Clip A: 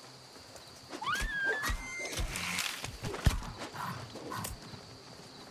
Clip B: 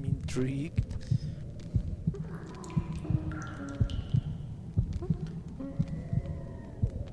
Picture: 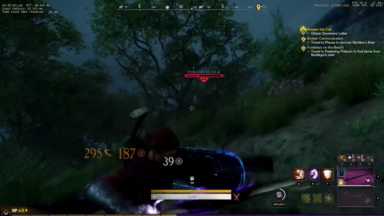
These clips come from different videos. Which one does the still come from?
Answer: A